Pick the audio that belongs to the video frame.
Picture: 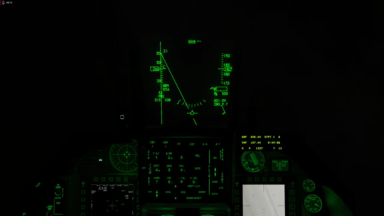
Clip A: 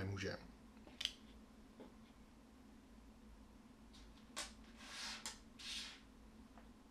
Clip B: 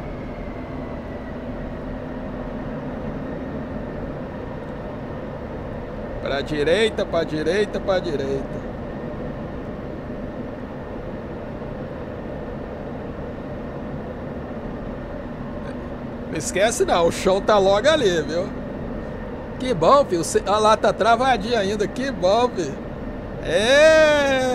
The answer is B